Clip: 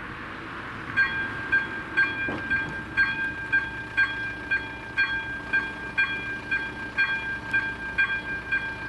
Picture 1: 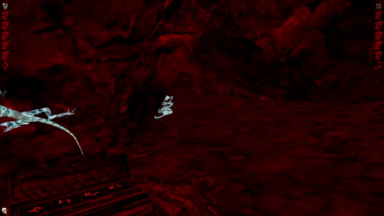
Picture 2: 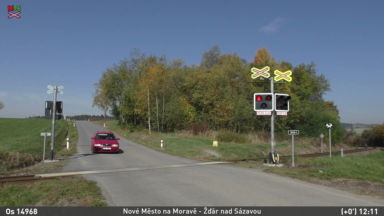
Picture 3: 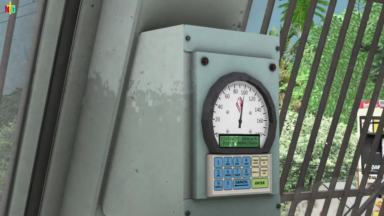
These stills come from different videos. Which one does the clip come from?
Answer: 2